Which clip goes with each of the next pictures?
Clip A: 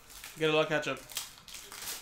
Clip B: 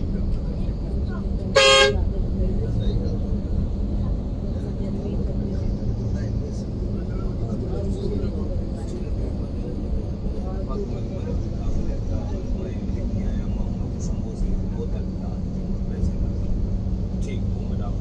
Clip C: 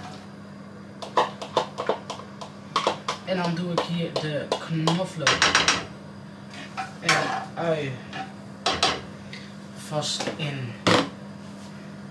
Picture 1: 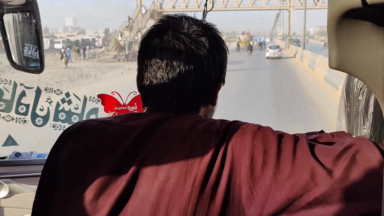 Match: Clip B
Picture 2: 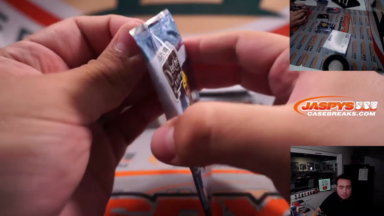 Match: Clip A